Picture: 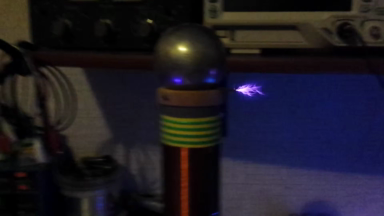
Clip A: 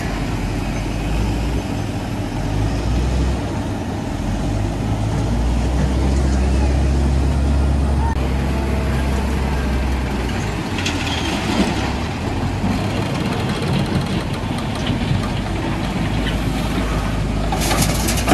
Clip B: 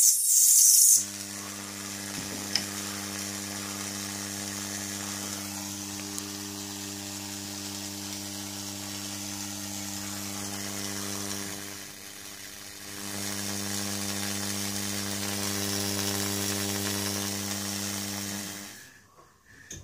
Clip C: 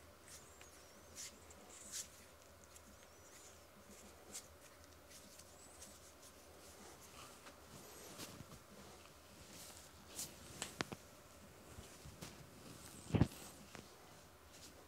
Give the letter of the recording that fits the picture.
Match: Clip B